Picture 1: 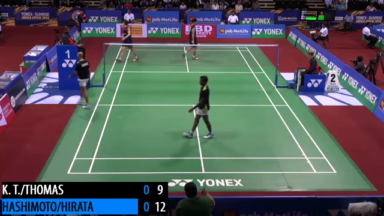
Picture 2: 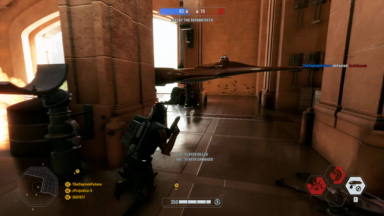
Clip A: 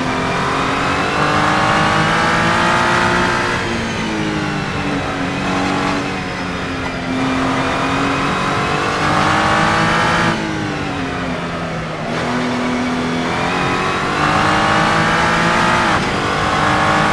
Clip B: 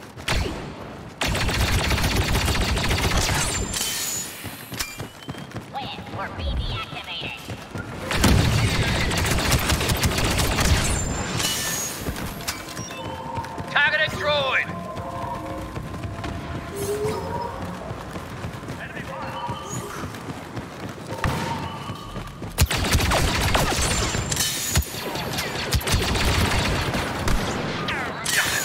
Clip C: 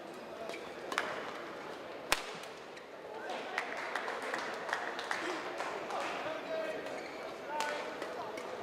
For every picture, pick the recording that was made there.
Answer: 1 C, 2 B